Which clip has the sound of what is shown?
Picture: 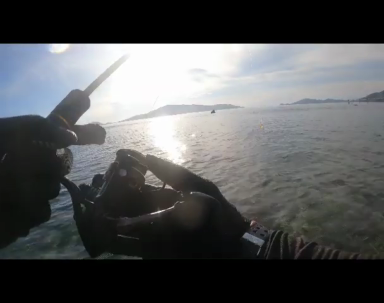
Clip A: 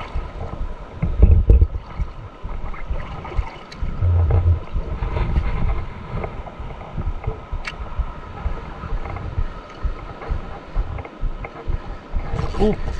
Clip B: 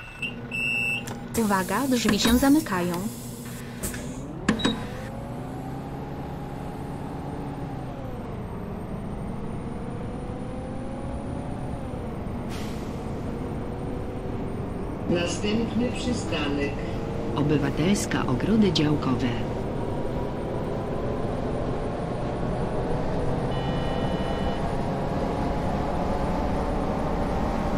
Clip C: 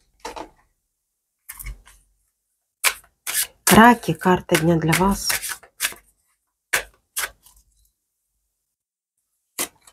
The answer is A